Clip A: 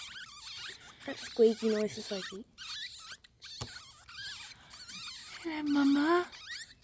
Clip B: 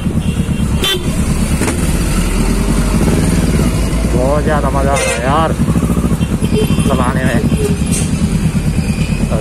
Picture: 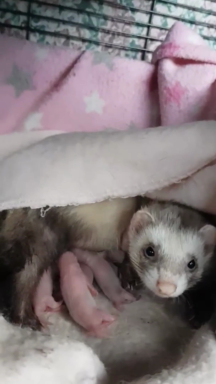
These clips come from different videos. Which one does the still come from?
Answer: A